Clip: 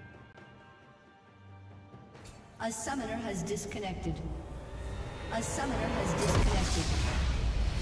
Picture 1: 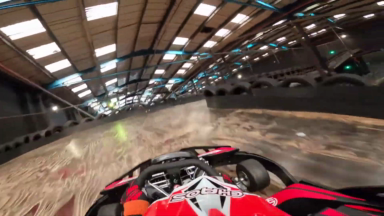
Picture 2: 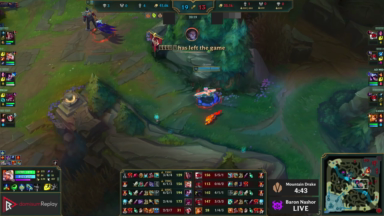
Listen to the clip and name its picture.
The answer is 2